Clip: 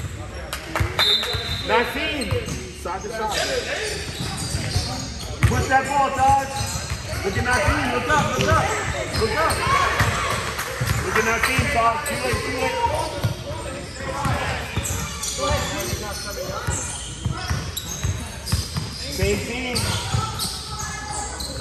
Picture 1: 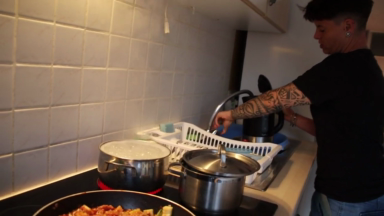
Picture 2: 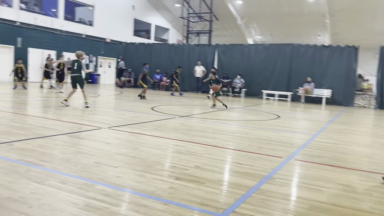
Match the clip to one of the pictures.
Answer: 2